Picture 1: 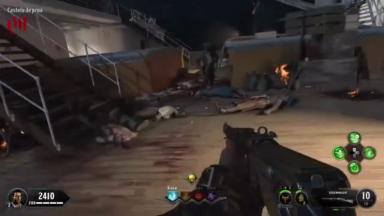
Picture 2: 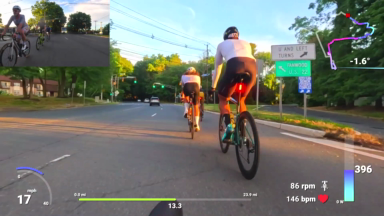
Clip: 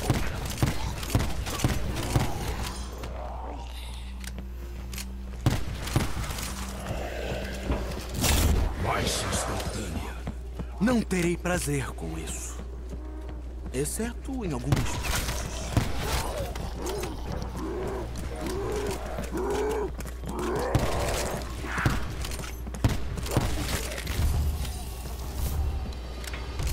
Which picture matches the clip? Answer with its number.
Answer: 1